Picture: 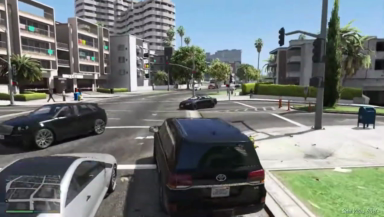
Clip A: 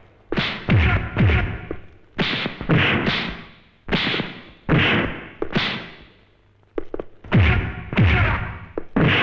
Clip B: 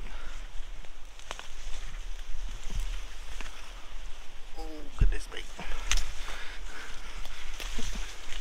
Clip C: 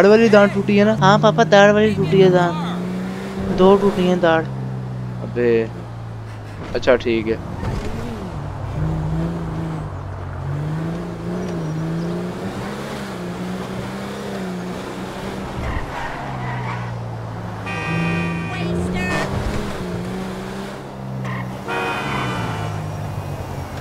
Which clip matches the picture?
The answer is C